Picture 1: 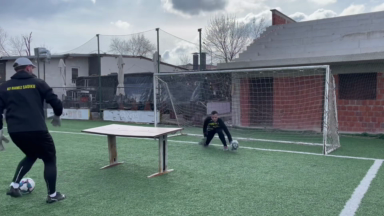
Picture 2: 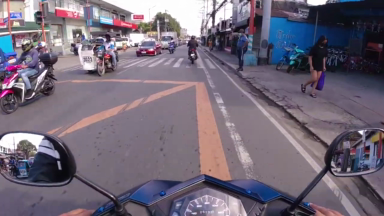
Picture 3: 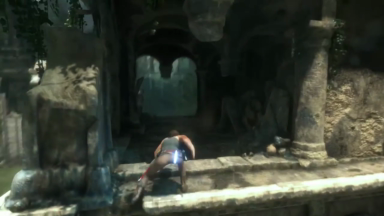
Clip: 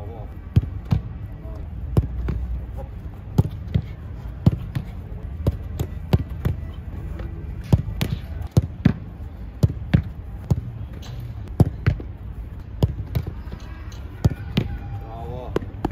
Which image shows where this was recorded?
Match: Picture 1